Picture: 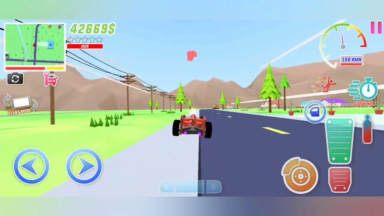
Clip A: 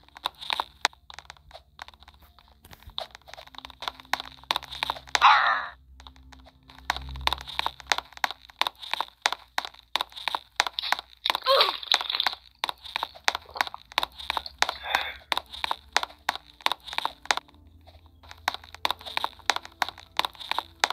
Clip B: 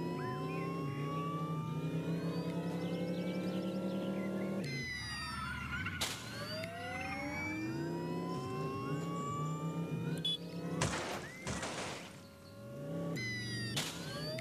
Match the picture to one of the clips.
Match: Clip B